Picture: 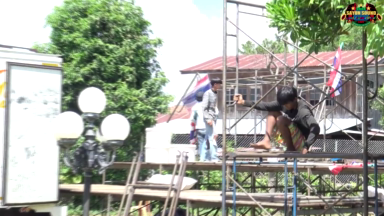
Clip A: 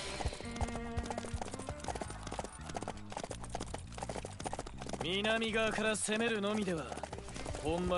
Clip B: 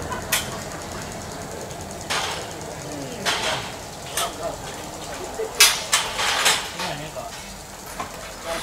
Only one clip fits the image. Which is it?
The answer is B